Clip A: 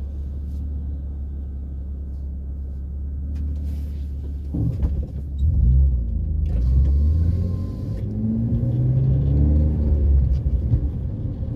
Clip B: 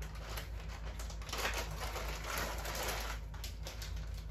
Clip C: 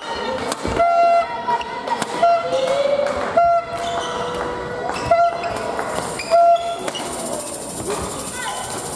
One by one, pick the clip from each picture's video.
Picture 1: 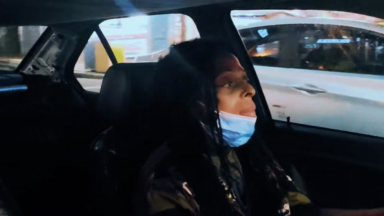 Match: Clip A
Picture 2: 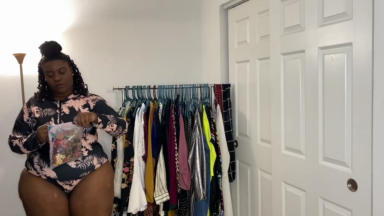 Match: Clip B